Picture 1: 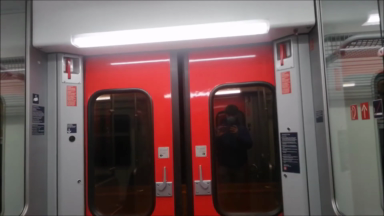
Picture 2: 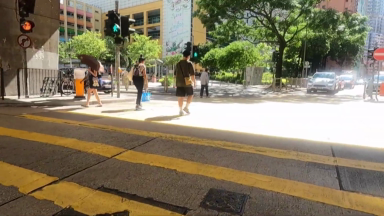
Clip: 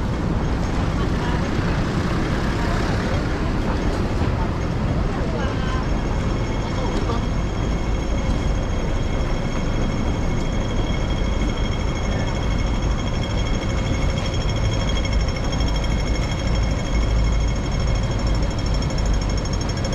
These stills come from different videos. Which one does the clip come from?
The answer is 2